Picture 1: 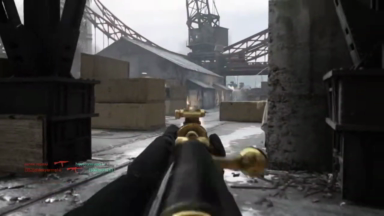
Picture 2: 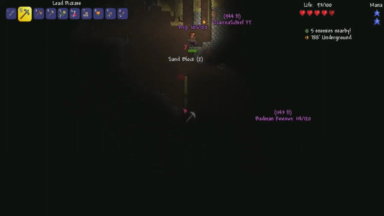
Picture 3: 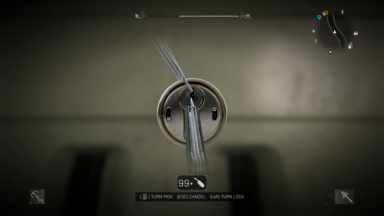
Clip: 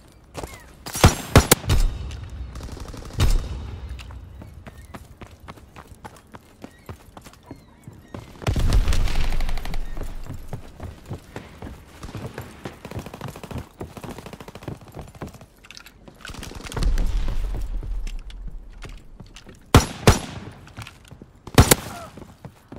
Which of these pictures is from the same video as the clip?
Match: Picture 1